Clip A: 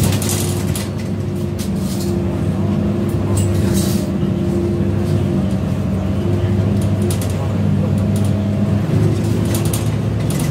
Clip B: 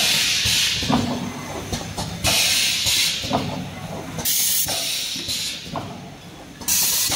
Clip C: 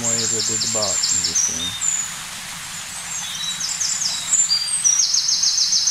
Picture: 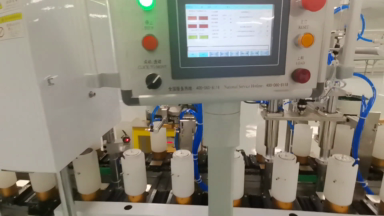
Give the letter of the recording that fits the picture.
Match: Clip B